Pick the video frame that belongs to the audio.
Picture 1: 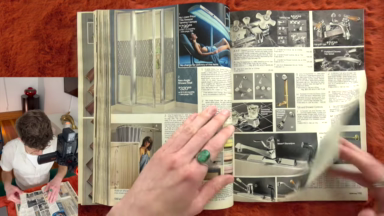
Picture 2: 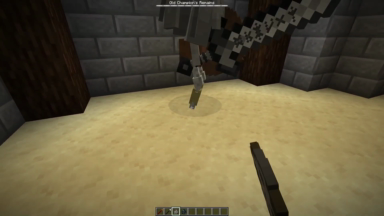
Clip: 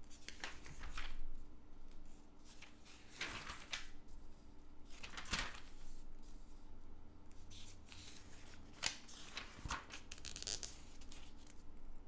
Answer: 1